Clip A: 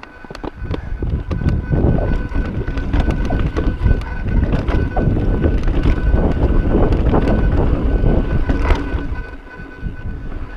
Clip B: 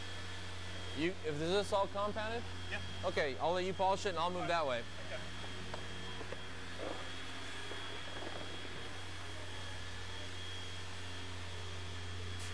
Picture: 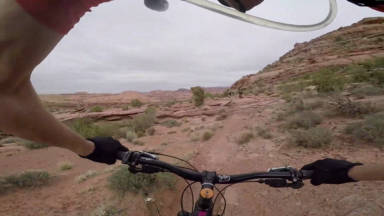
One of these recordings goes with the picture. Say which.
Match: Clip A